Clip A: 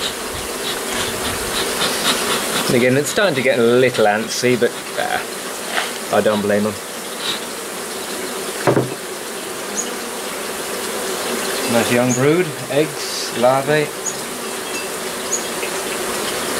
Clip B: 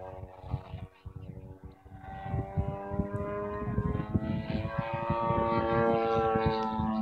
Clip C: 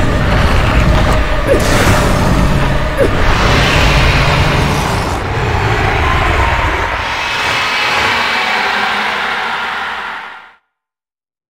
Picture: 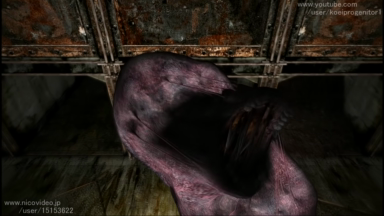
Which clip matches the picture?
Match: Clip C